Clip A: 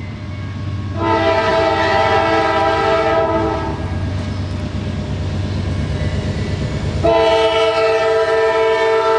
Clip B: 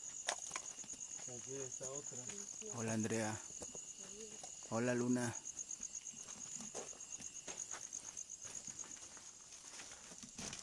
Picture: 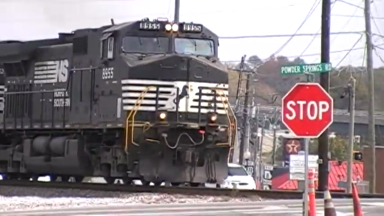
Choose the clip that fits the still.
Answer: A